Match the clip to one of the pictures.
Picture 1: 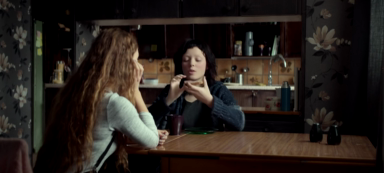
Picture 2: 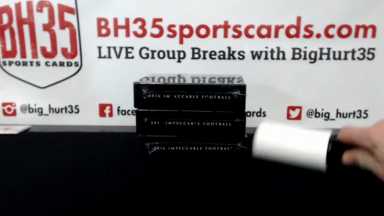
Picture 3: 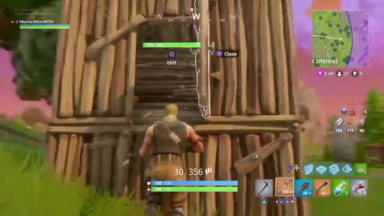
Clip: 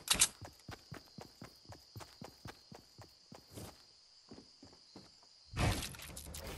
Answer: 3